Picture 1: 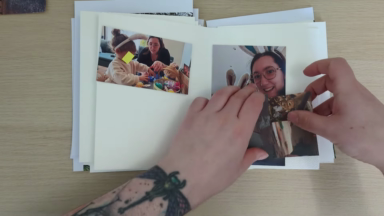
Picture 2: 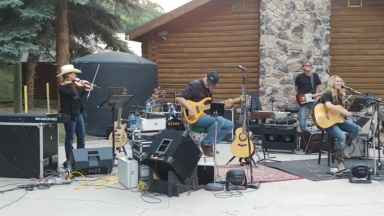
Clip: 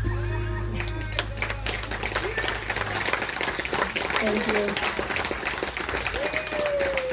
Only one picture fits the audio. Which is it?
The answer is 2